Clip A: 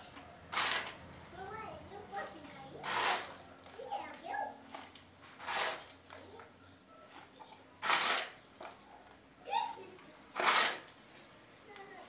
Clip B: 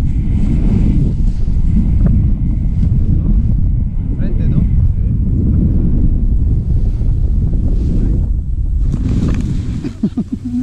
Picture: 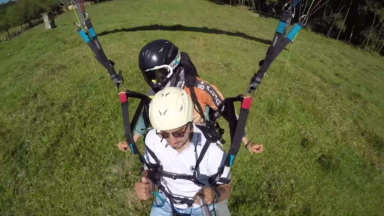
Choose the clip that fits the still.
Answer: B